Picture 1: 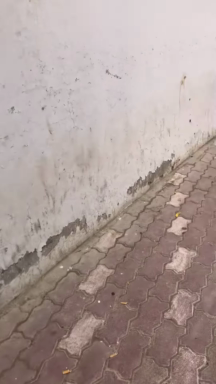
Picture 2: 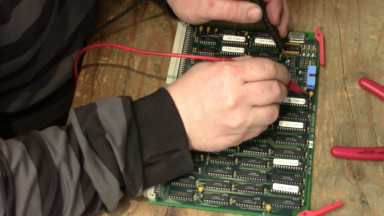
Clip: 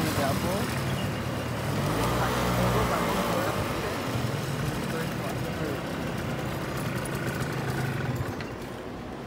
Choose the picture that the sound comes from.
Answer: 1